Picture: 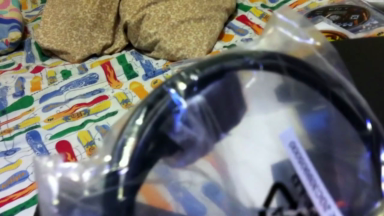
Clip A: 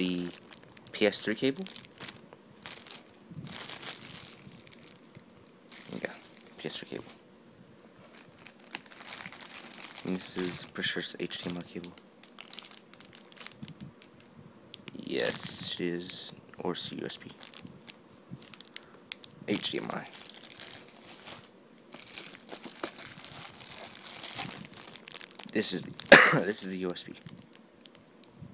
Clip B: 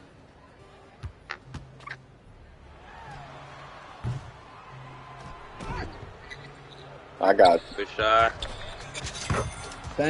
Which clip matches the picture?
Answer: A